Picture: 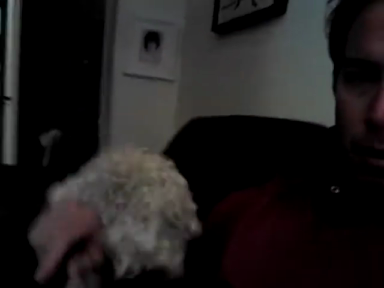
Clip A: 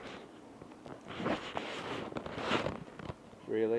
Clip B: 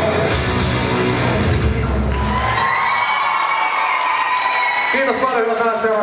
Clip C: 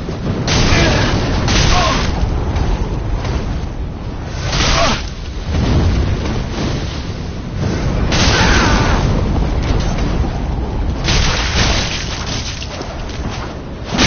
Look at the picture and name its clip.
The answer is A